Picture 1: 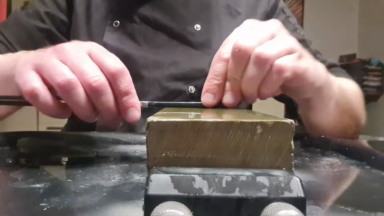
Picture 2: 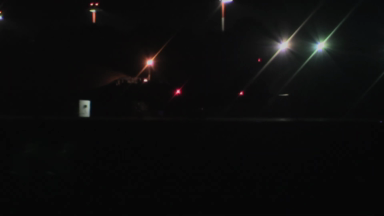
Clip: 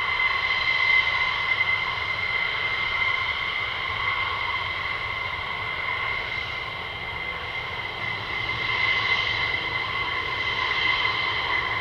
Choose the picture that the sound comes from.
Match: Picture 2